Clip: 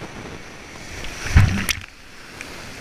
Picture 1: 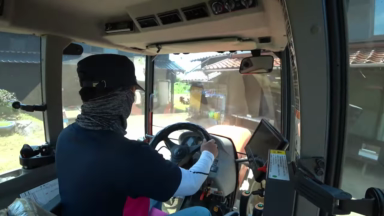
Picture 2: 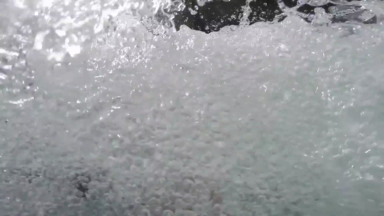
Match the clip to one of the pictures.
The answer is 2